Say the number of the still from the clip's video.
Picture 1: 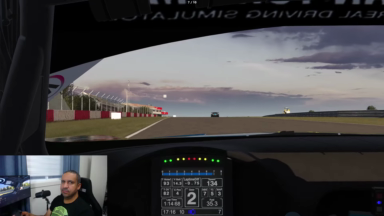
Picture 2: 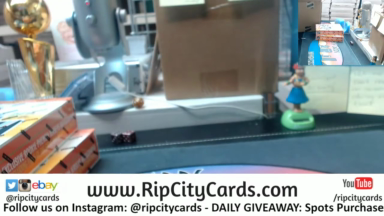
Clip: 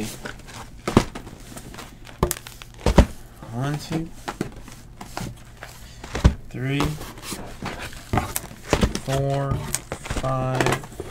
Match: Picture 2